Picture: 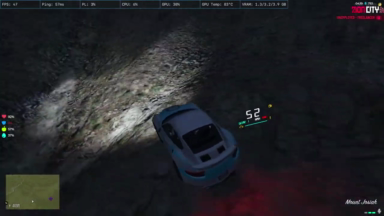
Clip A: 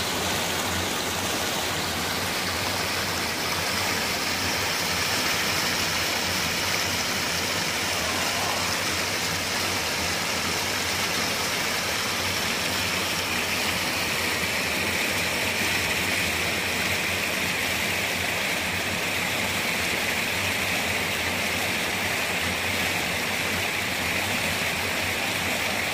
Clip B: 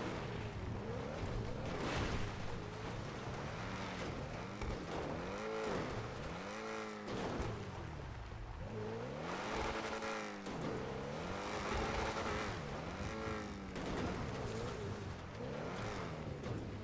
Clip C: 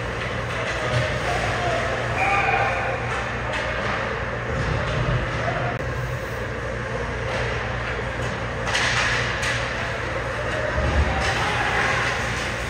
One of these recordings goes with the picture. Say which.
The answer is B